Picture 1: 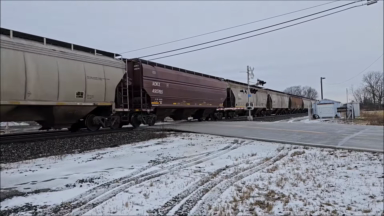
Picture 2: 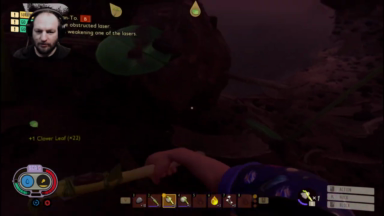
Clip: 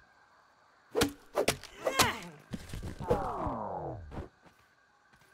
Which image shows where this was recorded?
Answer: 2